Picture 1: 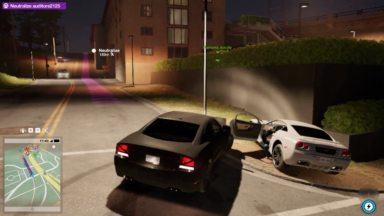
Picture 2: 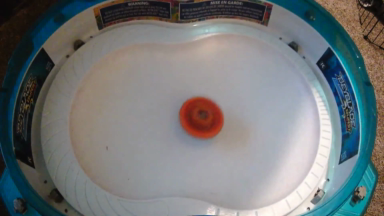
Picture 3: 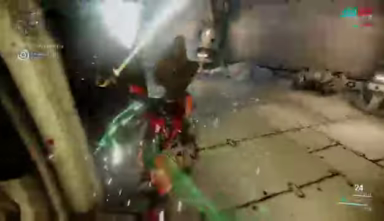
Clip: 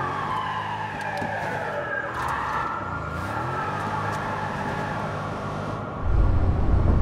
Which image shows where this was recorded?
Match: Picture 1